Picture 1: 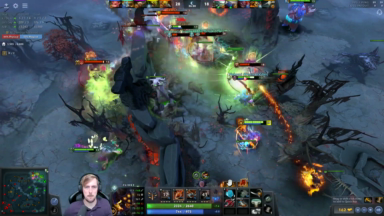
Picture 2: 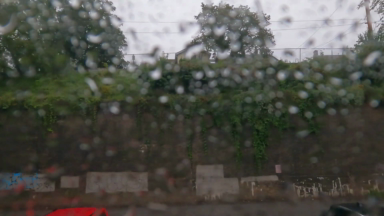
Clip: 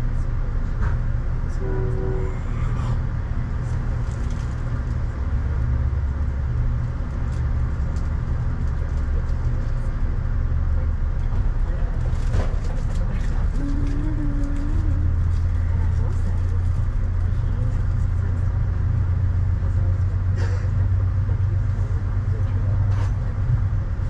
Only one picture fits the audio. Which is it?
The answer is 2